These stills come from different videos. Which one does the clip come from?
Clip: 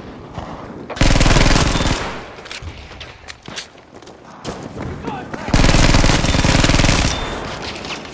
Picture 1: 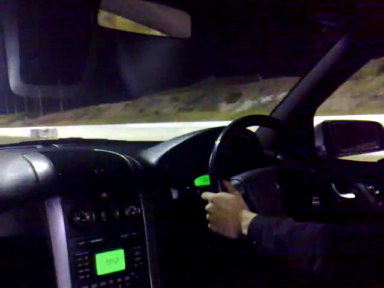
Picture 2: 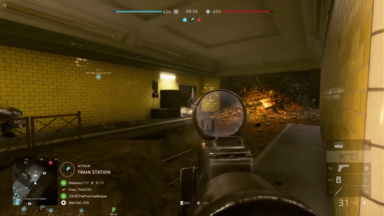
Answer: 2